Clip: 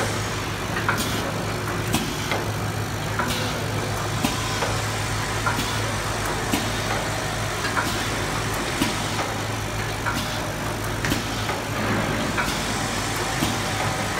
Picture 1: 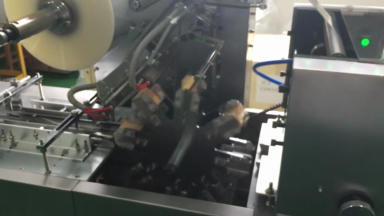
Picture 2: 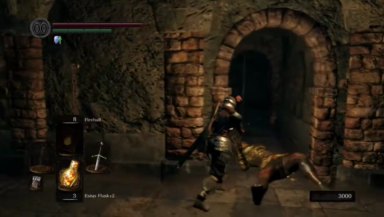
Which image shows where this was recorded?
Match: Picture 1